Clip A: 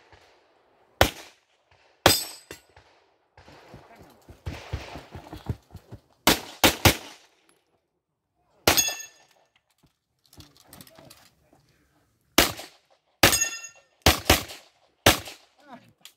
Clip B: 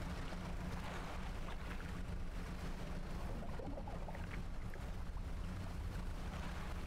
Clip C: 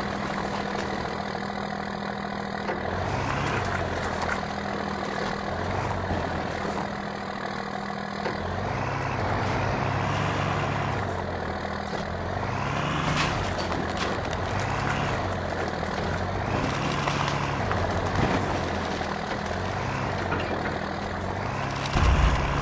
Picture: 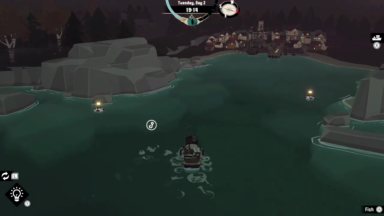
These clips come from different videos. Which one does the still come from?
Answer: B